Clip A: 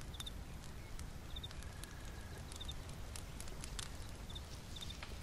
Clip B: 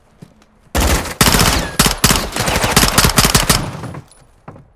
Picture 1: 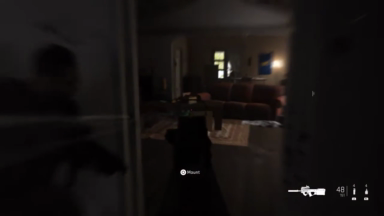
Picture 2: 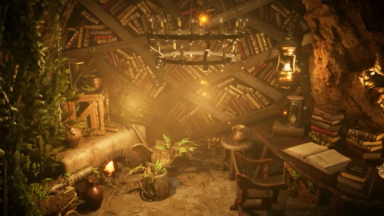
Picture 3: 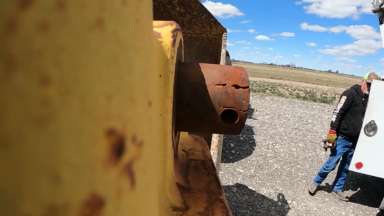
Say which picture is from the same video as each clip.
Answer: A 2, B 1